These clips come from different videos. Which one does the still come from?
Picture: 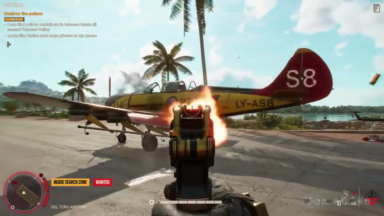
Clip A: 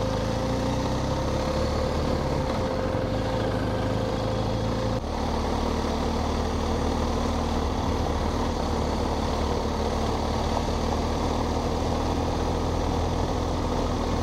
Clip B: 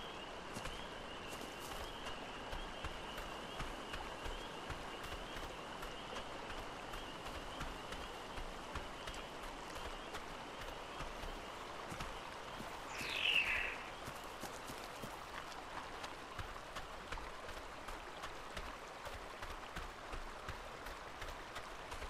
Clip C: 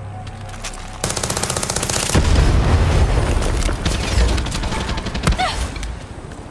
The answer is C